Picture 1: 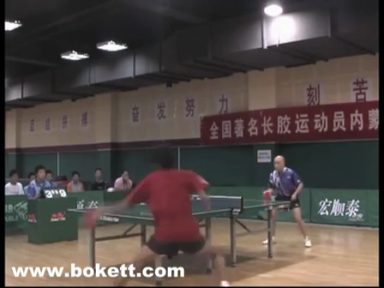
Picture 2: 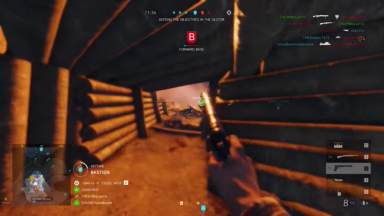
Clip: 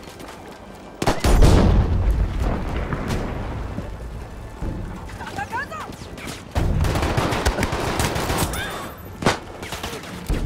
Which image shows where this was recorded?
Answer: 2